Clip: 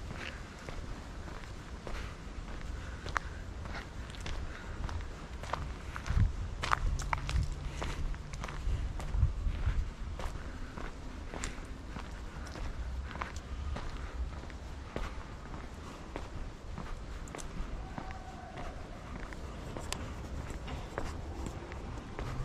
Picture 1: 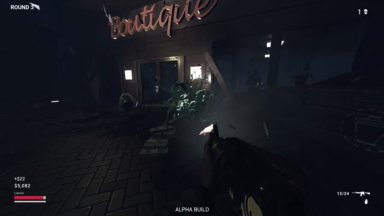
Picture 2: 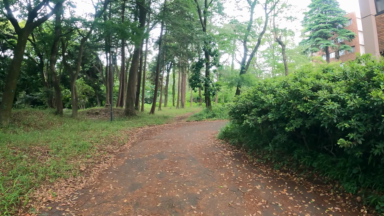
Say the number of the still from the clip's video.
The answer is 2